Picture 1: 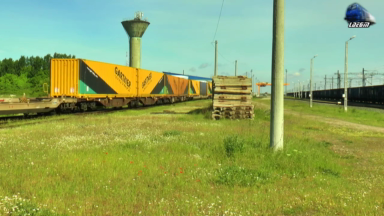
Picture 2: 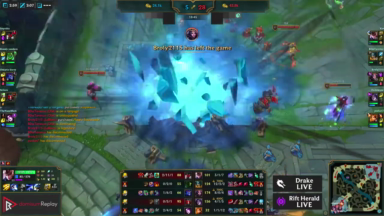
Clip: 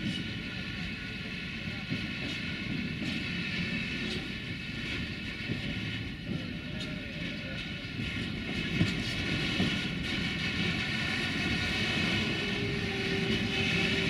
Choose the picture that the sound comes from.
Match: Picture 1